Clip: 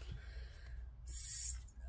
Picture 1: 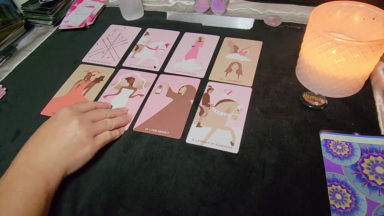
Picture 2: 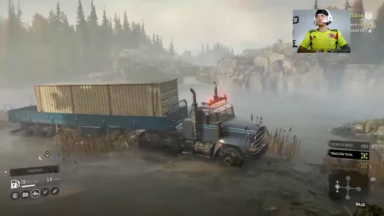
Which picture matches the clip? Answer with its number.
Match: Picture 1